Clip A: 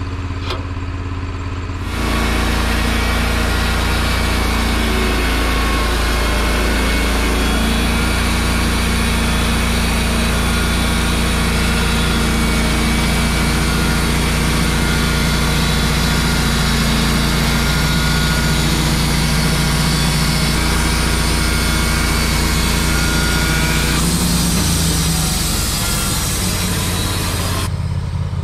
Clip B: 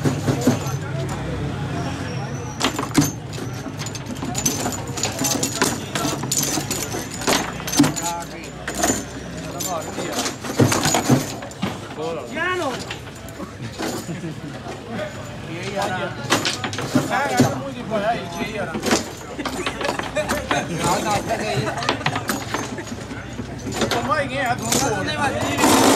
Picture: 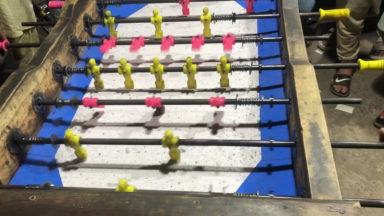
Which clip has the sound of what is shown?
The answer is B